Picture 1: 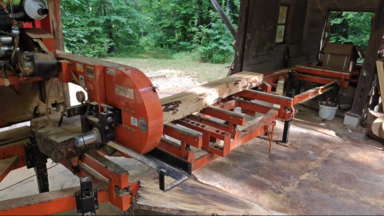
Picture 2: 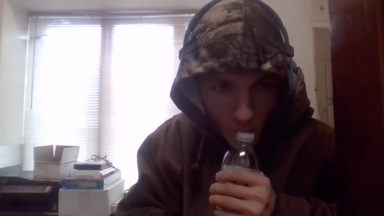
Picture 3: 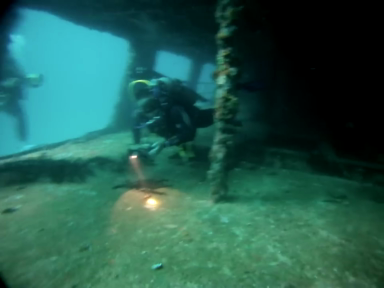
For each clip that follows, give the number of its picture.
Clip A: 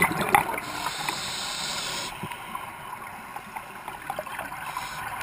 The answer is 3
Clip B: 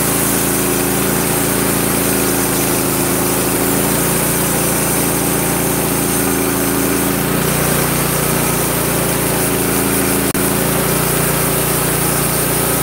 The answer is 1